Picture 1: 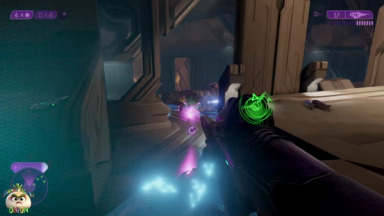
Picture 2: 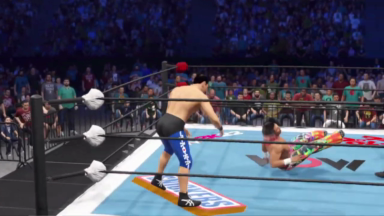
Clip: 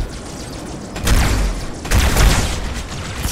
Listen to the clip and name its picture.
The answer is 1